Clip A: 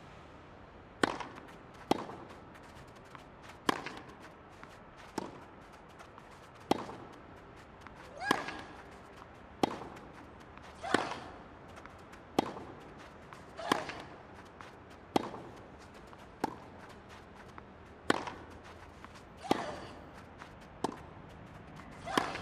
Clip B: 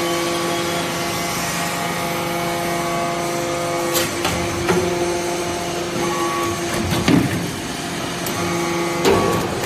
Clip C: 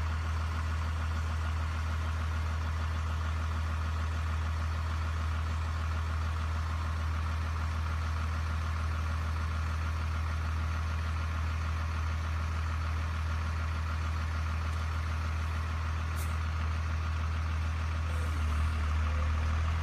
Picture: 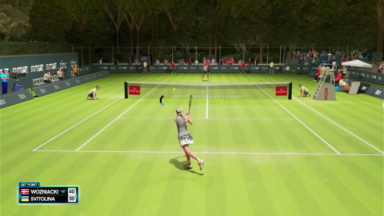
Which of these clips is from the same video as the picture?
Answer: A